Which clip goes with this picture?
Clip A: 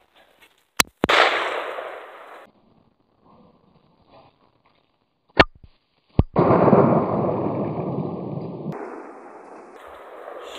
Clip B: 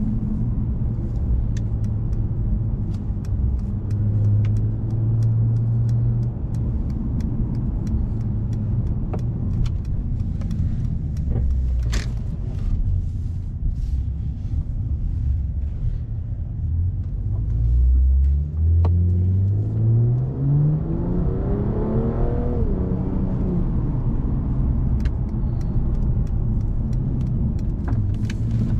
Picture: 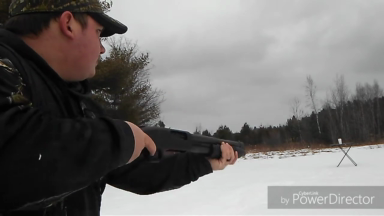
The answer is A